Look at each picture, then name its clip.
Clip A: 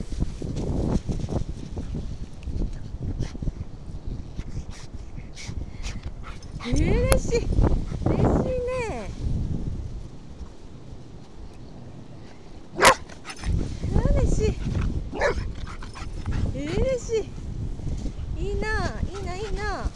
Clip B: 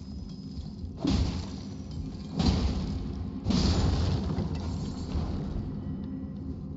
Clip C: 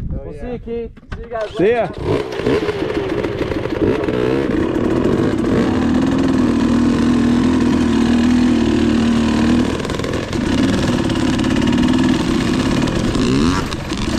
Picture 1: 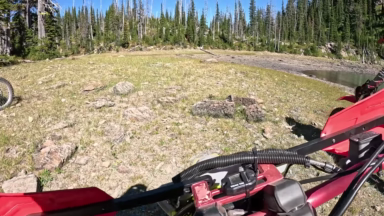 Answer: C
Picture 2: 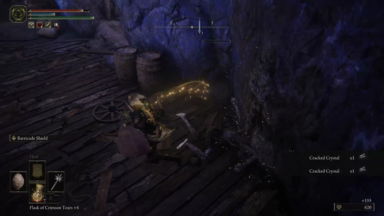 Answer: B